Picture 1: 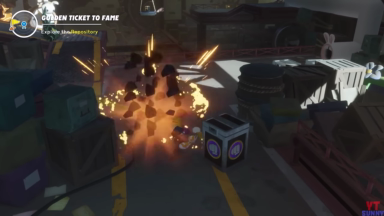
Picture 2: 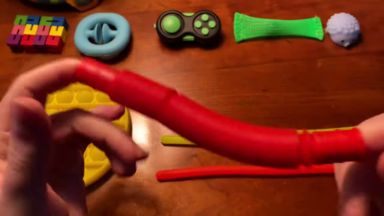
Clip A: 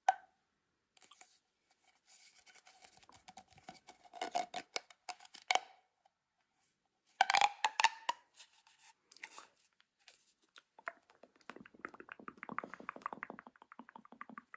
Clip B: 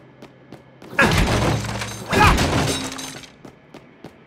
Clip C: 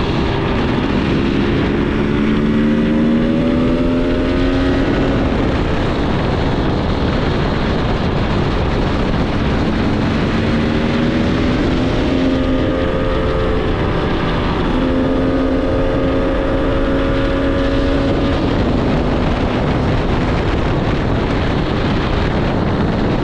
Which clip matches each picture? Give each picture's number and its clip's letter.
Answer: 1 B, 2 A